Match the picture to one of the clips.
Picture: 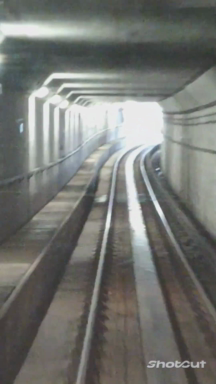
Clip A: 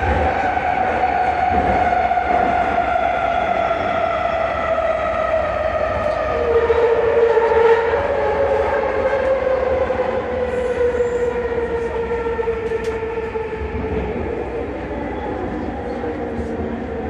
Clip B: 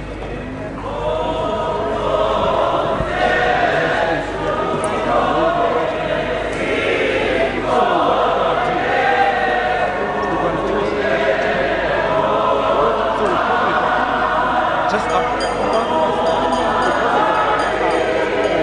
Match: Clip A